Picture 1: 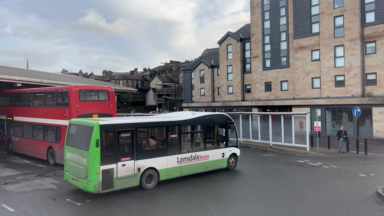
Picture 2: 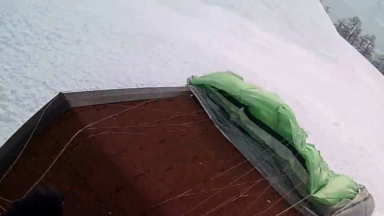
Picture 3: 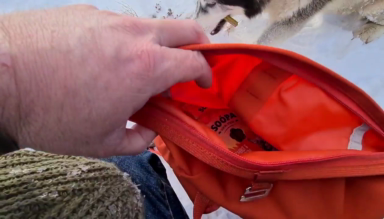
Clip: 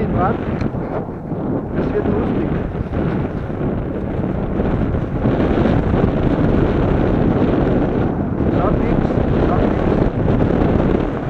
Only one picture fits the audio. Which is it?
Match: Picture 2